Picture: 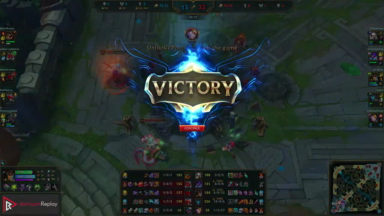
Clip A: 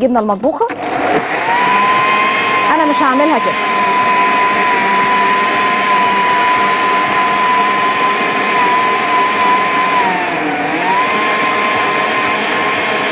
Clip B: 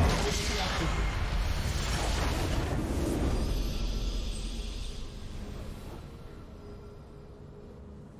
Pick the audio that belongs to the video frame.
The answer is B